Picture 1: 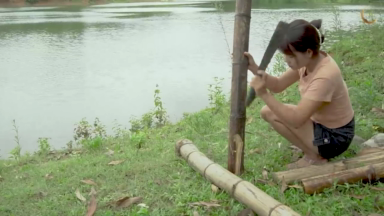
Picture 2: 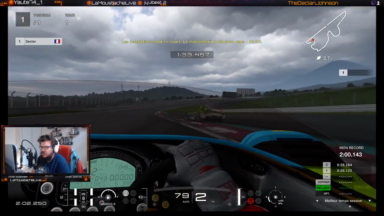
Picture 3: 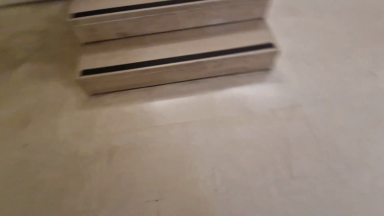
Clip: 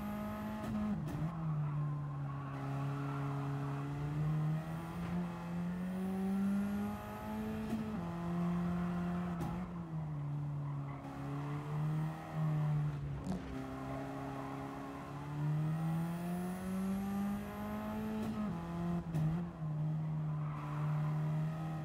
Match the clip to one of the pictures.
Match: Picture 2